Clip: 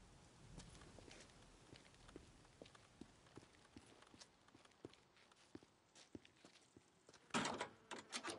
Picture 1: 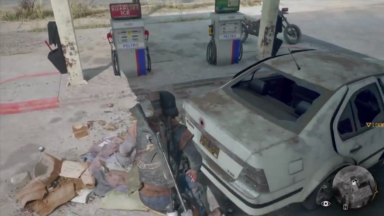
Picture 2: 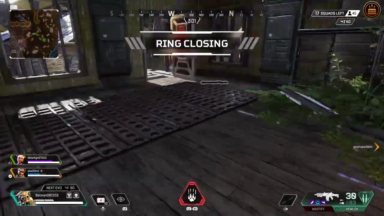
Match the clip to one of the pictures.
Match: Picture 1